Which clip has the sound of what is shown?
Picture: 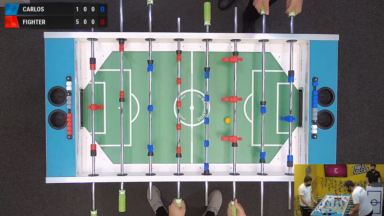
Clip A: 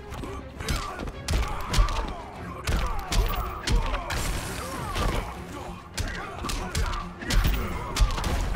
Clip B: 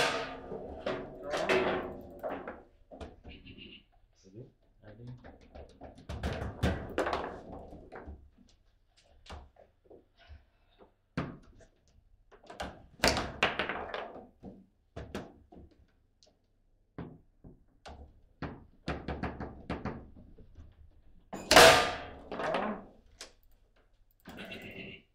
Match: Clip B